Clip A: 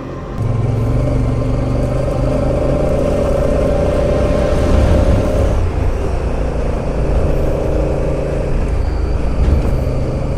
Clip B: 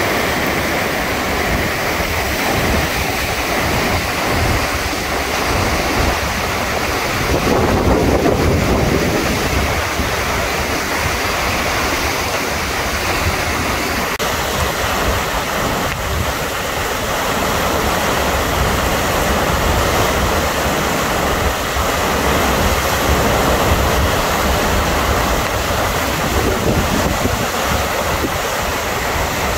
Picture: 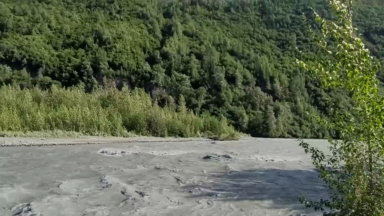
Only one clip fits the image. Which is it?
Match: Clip B